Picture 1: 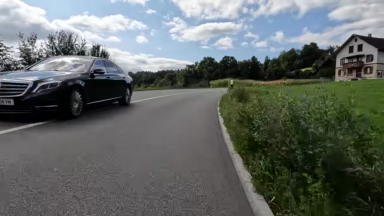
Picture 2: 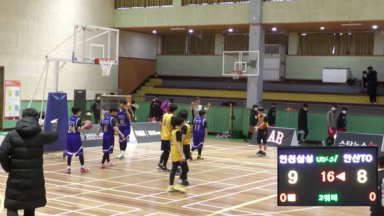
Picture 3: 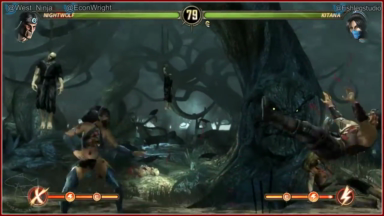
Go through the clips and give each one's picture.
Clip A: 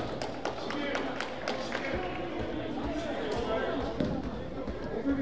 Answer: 2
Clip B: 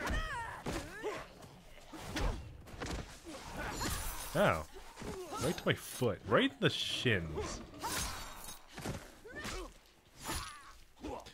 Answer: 3